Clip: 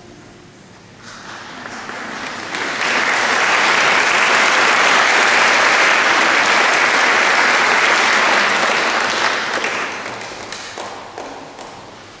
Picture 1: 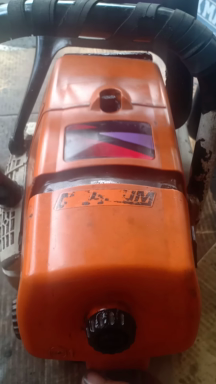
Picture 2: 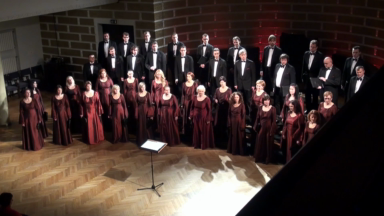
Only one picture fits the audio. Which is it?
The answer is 2